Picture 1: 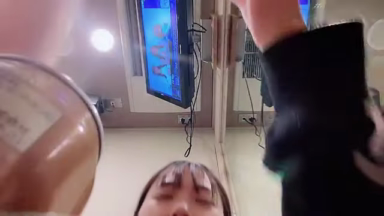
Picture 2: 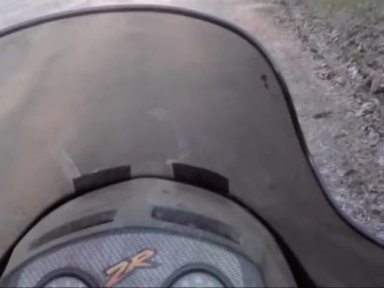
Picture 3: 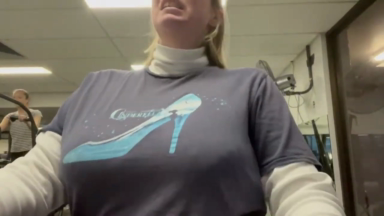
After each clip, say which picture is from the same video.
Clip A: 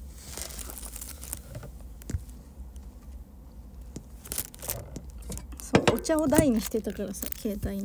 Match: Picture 1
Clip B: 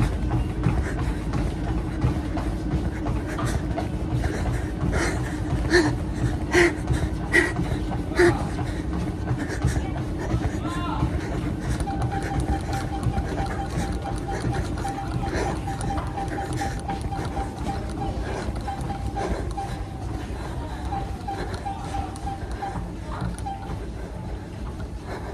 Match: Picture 3